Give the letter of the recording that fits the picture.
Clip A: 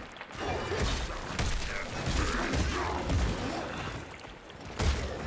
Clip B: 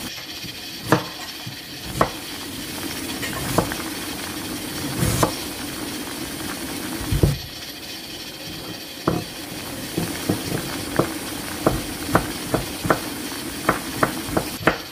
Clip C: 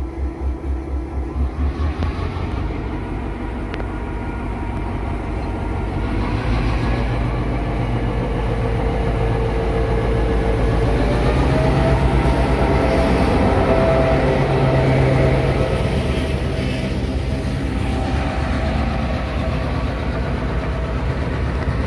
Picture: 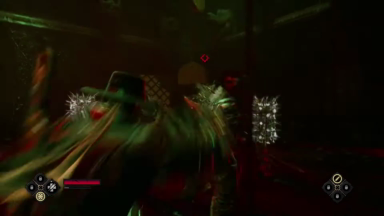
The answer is A